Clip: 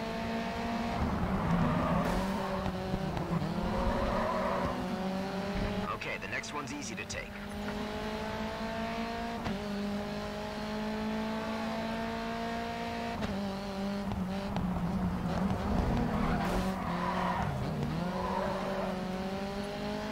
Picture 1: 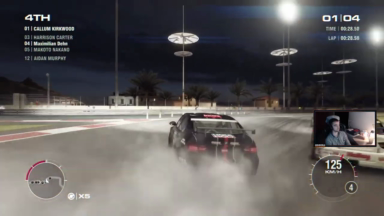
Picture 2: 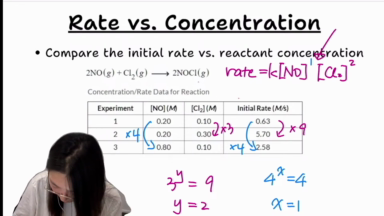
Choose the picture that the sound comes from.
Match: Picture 1